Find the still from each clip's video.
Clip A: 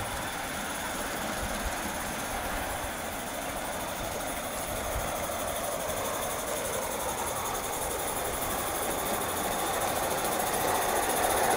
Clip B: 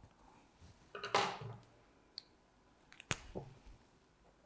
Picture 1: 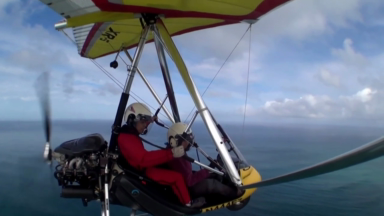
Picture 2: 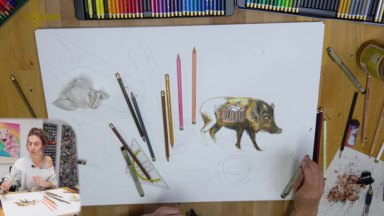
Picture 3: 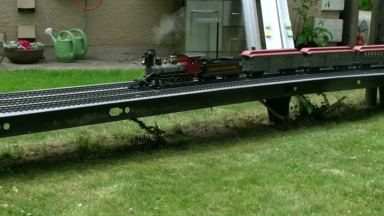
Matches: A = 3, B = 2